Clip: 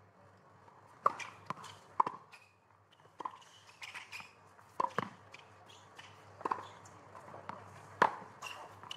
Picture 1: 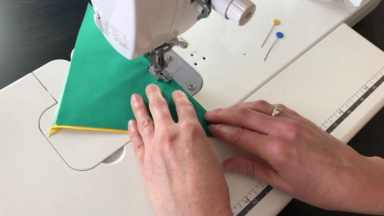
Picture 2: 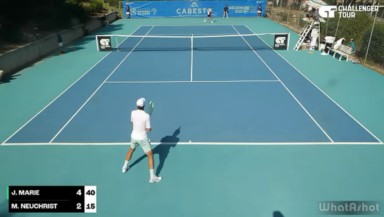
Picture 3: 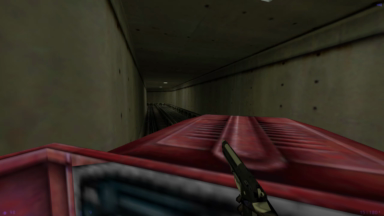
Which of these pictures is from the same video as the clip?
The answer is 2